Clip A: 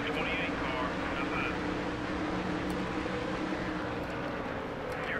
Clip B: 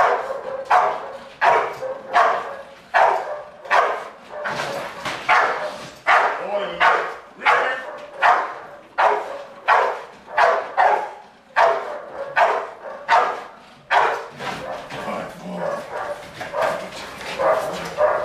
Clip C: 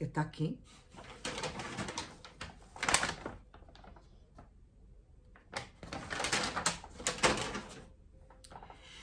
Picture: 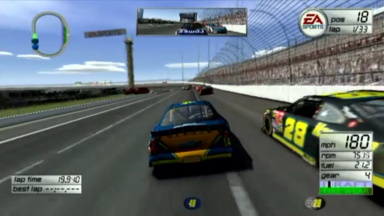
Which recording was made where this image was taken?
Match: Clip A